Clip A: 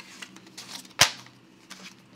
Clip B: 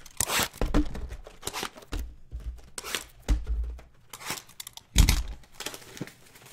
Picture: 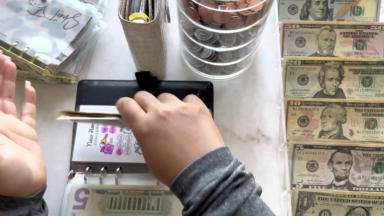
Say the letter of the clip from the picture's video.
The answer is A